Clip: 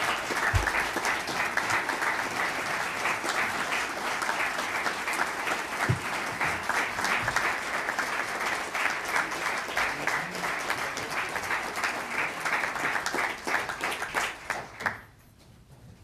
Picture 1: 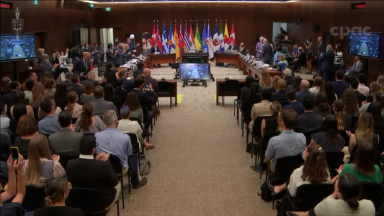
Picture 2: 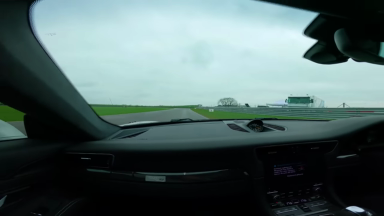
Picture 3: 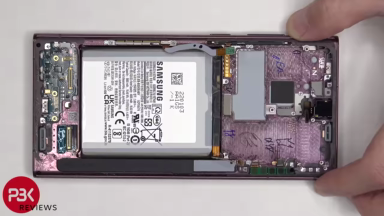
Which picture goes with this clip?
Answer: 1